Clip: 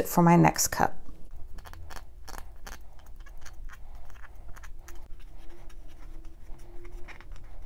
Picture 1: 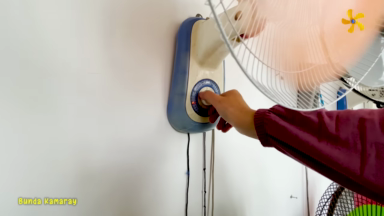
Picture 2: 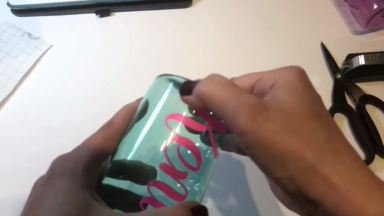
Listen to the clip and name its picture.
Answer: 2